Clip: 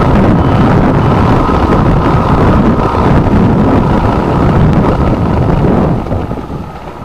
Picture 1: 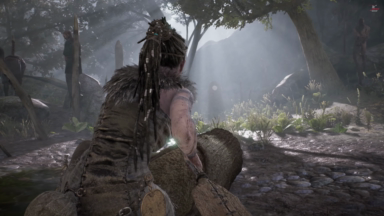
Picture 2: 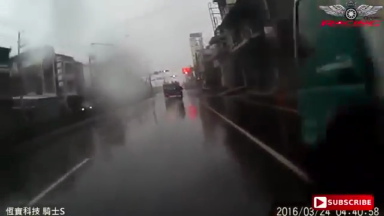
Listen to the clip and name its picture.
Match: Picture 2